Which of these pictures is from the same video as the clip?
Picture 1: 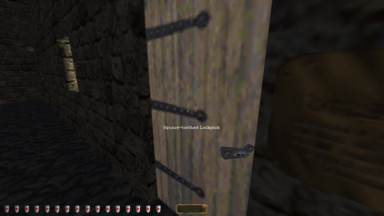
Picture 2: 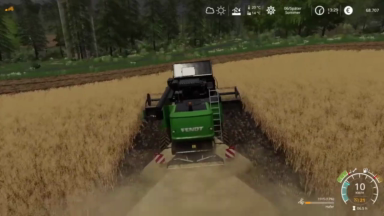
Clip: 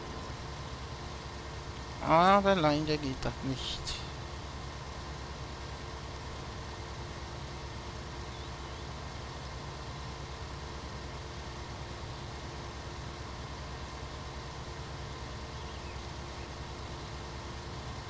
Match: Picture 2